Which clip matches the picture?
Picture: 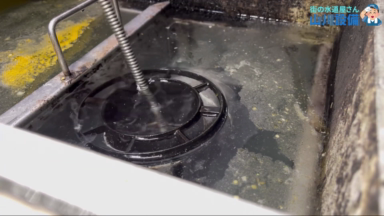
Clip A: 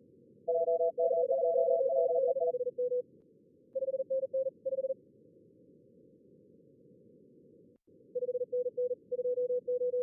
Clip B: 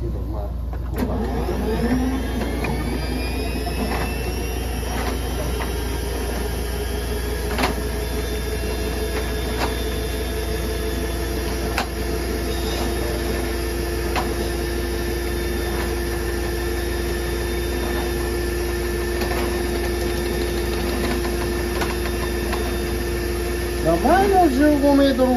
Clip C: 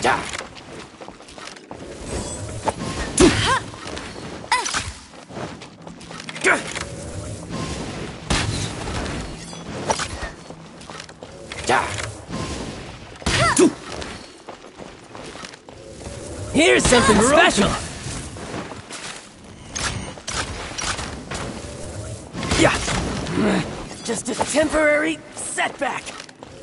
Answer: B